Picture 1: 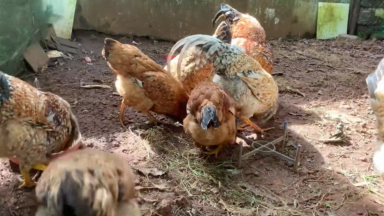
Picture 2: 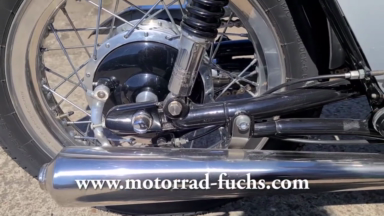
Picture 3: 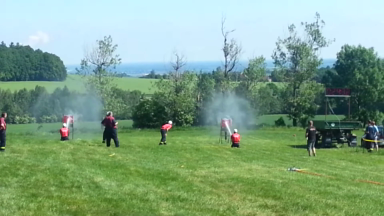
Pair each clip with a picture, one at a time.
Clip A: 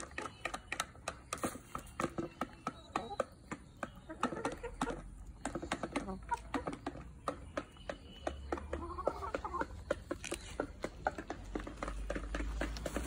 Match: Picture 1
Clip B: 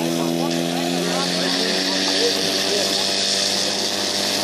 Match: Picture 3